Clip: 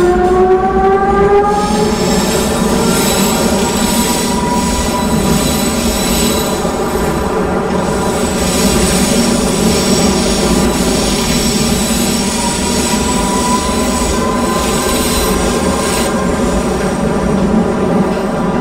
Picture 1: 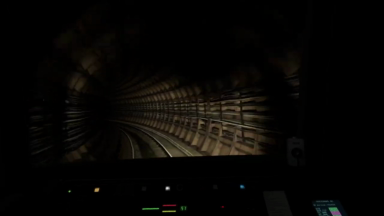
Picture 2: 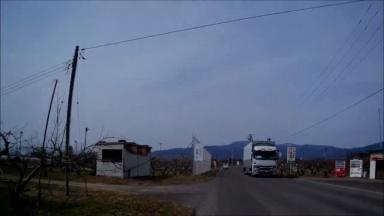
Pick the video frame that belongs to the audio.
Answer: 1